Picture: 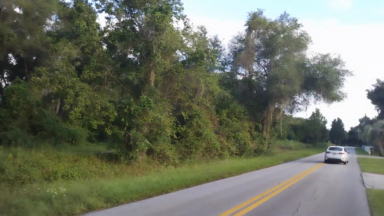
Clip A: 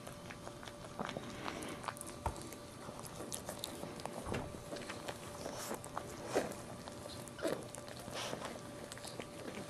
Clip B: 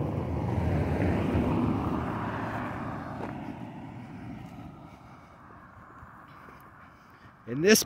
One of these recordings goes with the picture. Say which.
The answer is B